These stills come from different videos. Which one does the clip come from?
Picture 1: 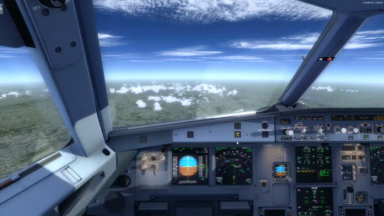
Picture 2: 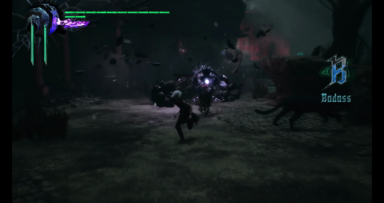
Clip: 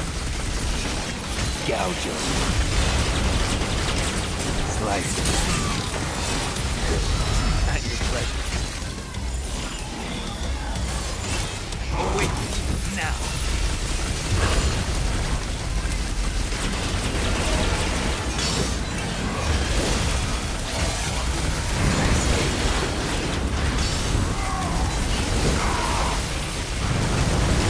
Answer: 2